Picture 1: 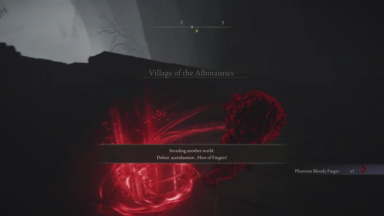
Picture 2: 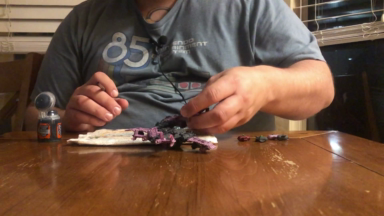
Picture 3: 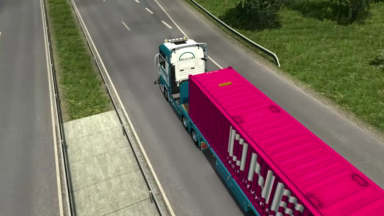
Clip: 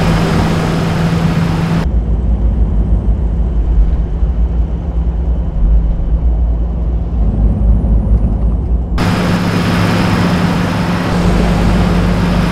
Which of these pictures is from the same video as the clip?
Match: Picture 3